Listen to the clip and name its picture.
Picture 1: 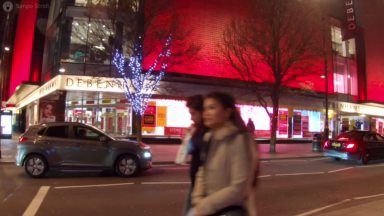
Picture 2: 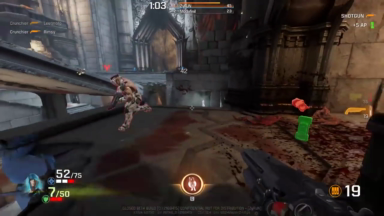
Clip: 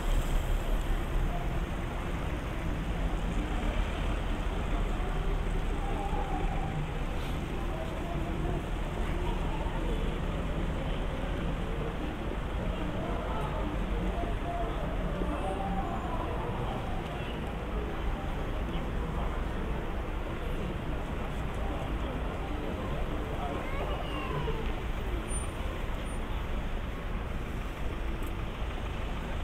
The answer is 1